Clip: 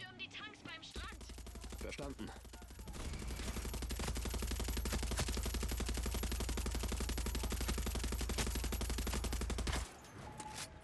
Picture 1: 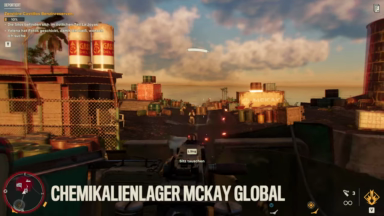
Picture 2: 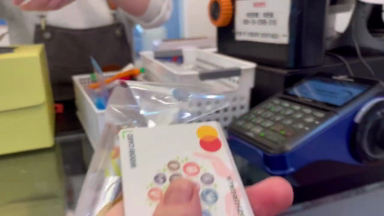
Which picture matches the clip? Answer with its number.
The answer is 1